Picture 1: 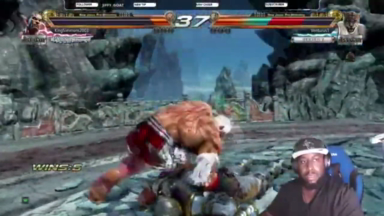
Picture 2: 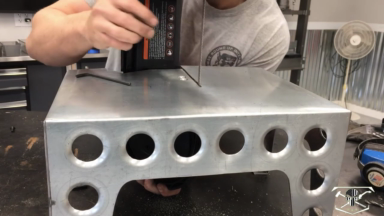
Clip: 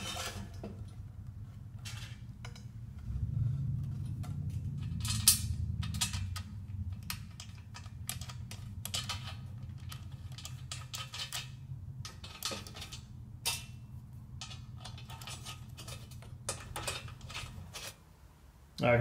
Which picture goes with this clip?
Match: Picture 2